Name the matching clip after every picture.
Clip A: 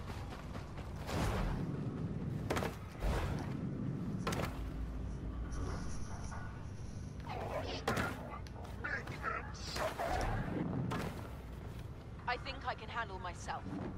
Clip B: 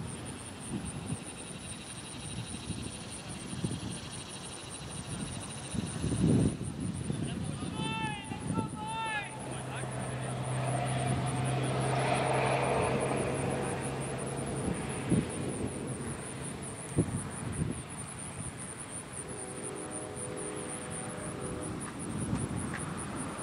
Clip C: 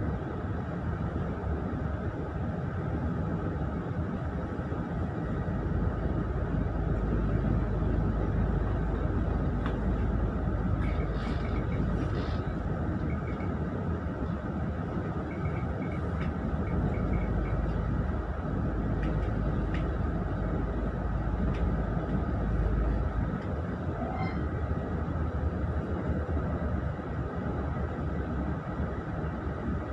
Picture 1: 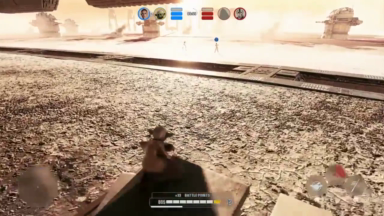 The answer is A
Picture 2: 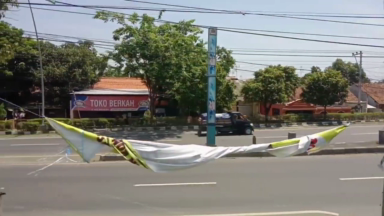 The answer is C